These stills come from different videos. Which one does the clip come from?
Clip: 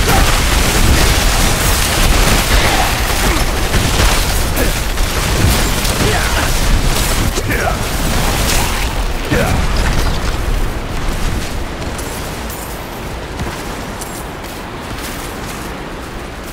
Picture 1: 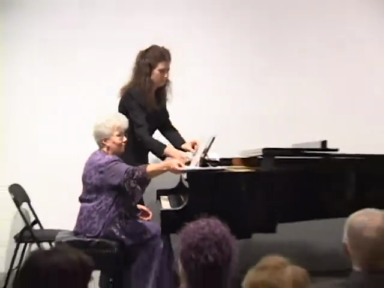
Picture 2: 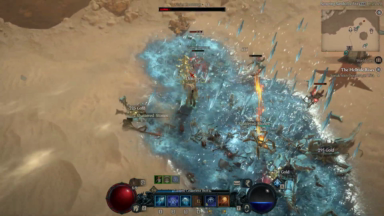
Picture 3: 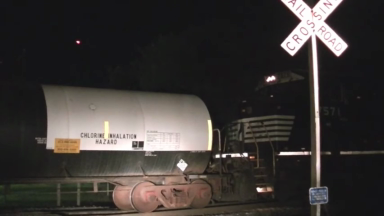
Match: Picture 2